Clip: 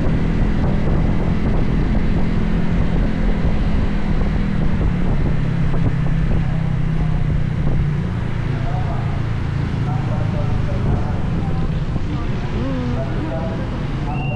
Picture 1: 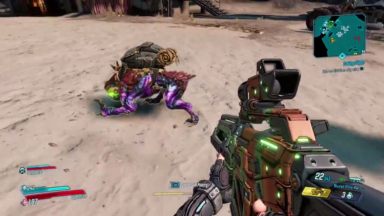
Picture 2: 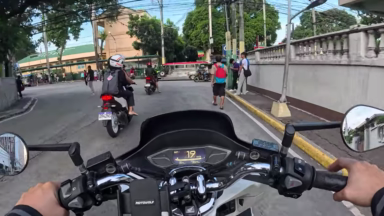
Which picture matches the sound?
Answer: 2